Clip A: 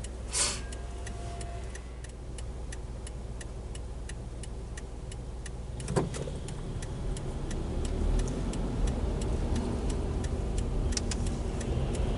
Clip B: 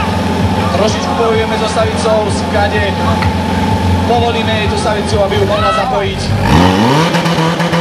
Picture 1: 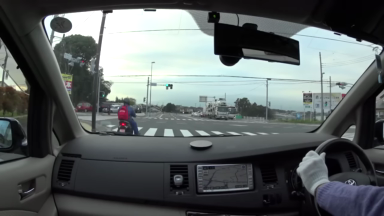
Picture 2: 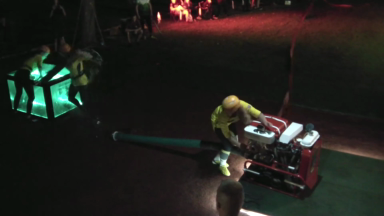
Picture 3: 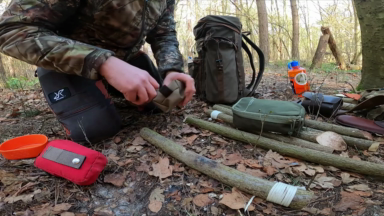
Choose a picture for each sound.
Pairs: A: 1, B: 2